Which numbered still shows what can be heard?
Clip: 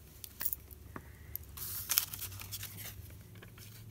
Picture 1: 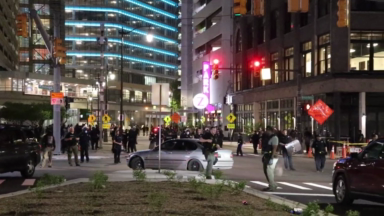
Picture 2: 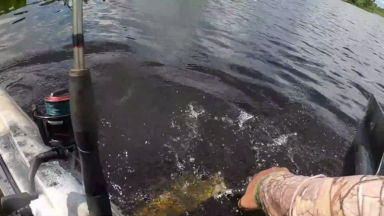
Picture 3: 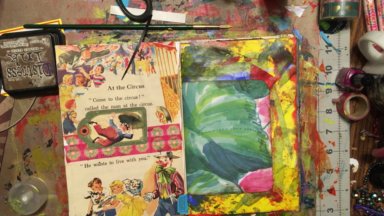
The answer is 3